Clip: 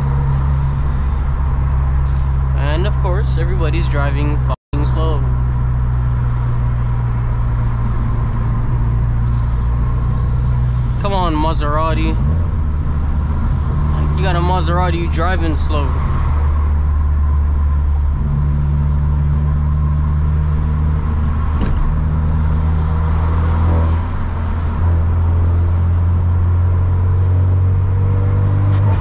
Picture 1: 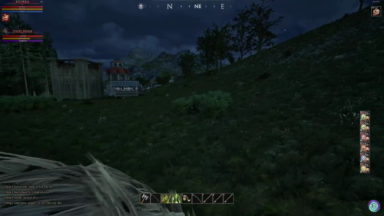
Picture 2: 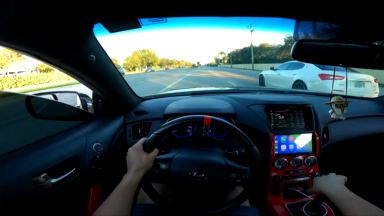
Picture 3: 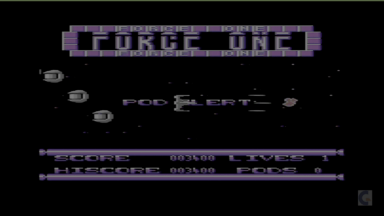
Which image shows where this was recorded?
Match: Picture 2